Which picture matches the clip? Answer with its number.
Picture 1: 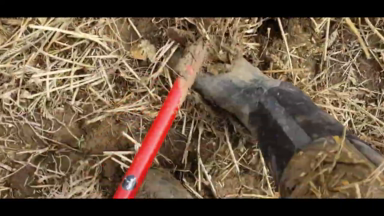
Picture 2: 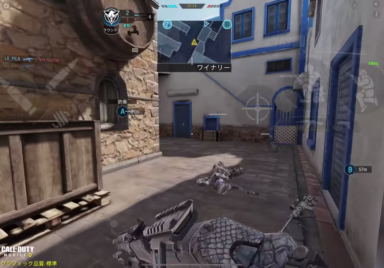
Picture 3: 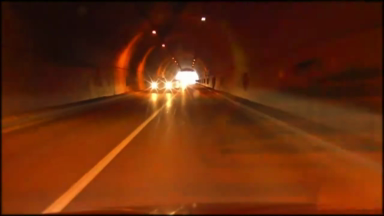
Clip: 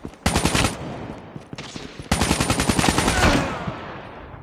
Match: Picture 2